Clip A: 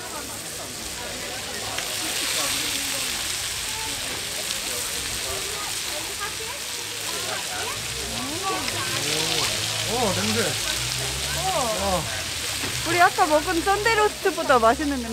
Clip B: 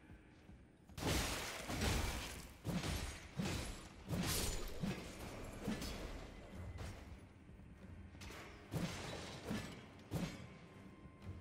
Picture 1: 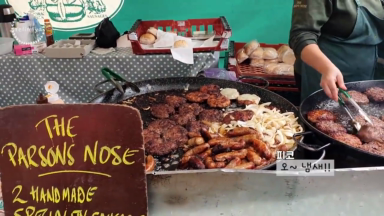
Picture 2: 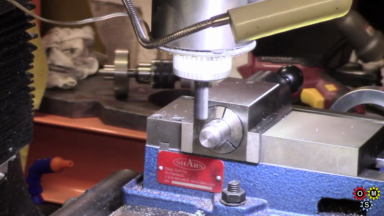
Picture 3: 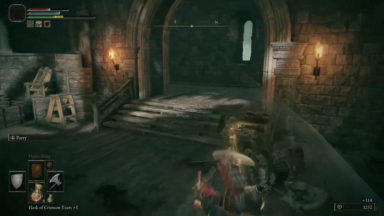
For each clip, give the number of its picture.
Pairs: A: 1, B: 3